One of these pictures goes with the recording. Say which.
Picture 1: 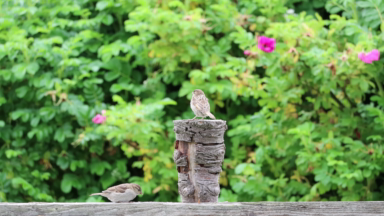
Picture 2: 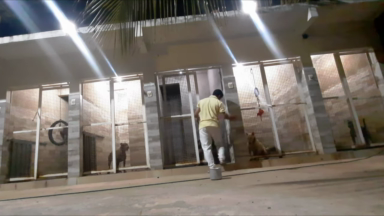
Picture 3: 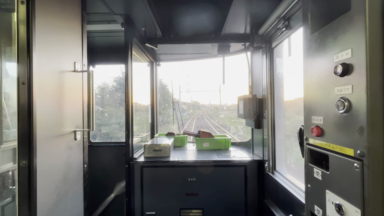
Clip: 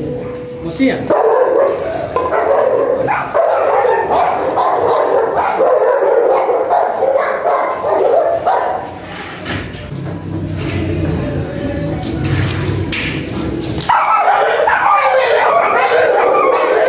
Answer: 2